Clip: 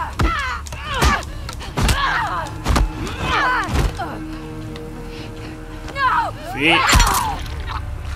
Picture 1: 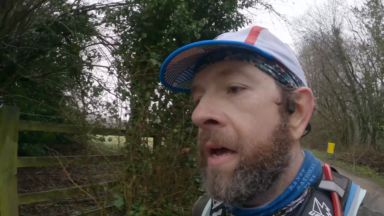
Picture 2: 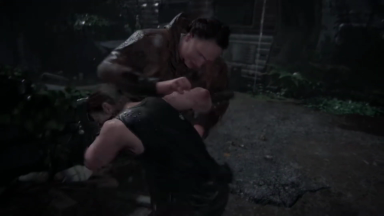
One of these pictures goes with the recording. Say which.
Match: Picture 2